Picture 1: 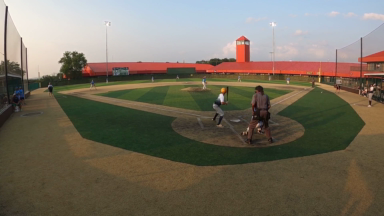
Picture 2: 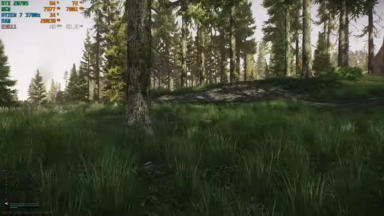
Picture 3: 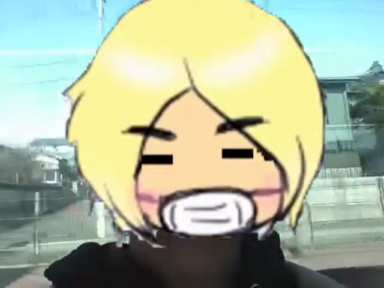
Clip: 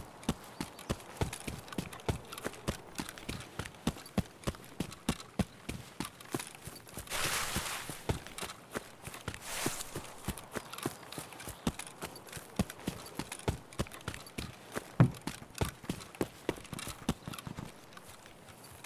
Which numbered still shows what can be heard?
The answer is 2